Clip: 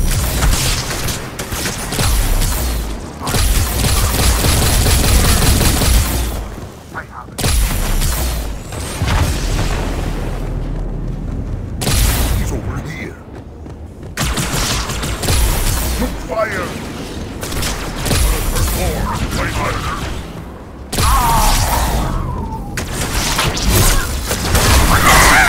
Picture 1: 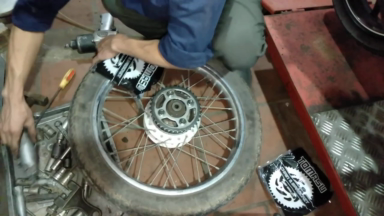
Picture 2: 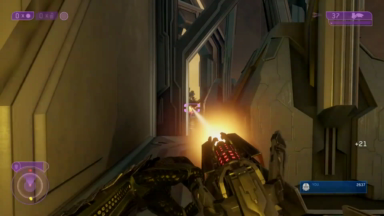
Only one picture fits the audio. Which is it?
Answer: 2